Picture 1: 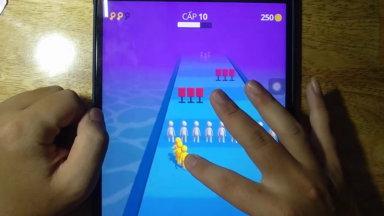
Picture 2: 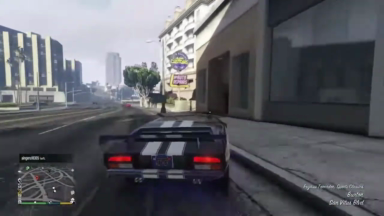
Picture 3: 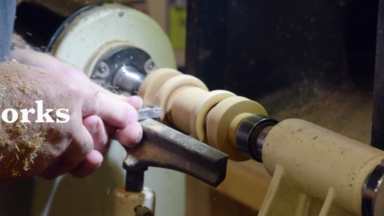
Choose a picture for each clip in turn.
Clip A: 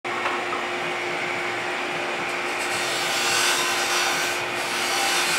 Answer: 3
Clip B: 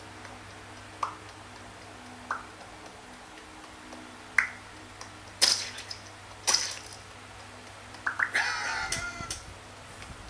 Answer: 1